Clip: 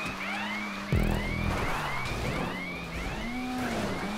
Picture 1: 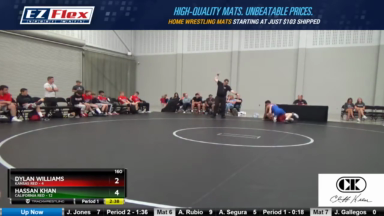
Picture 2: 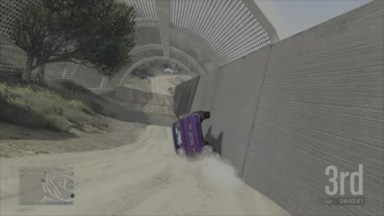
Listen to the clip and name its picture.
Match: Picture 2